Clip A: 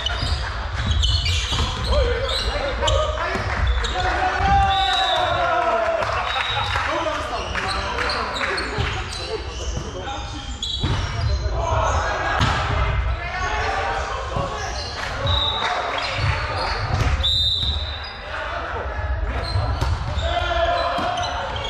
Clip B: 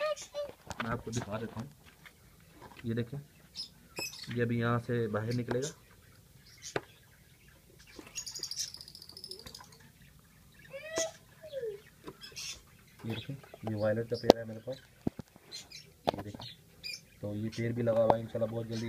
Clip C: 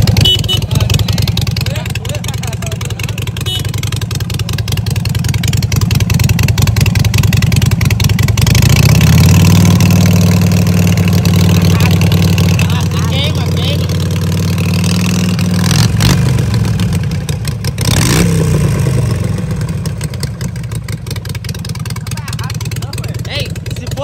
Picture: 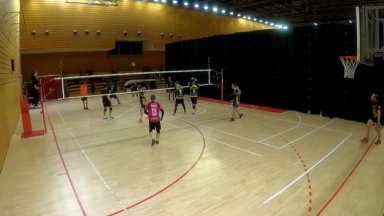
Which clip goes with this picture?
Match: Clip A